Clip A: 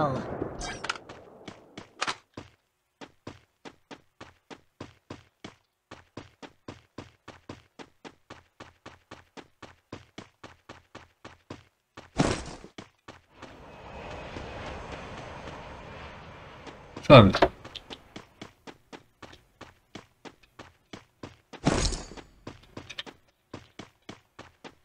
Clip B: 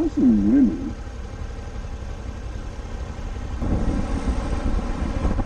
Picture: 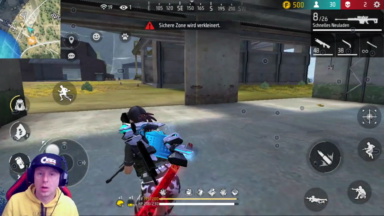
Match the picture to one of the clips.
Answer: A